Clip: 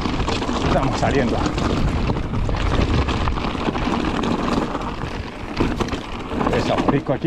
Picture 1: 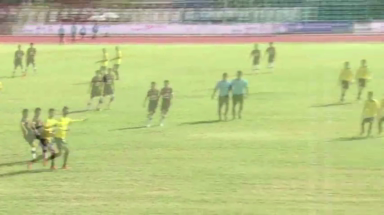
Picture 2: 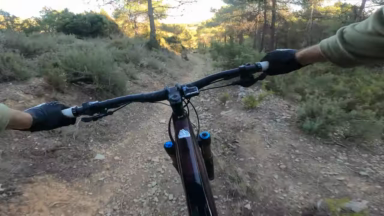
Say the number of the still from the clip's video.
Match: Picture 2